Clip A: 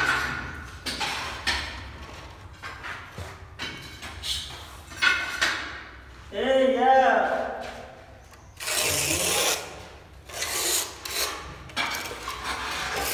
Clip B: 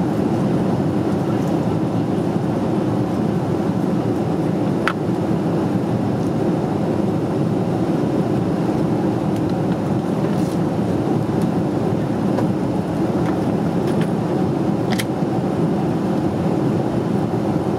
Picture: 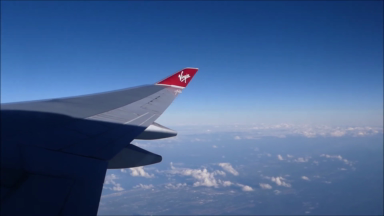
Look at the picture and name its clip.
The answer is B